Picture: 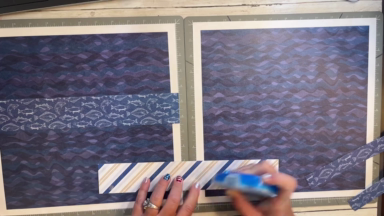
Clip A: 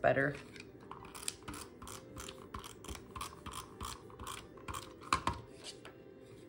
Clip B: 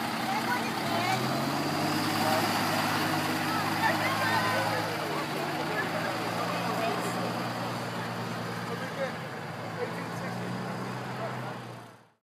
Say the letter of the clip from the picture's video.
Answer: A